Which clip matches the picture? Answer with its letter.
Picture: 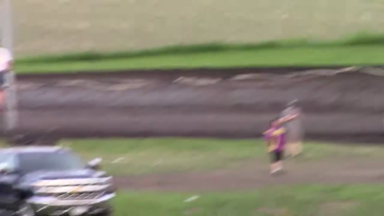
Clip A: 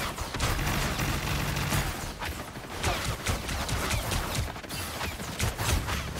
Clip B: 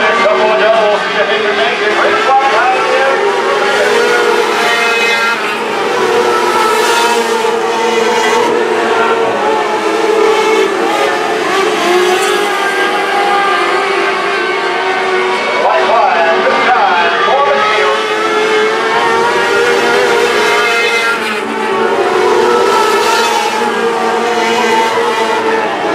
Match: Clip B